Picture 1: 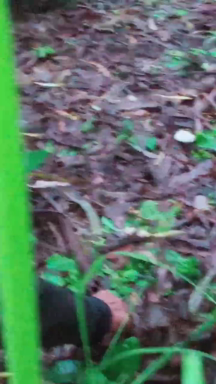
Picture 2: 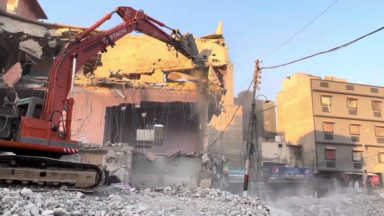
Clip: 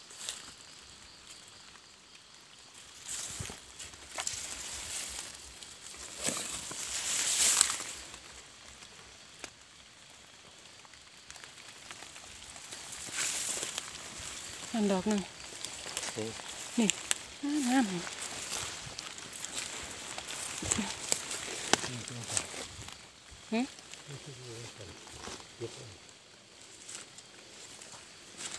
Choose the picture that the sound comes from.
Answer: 1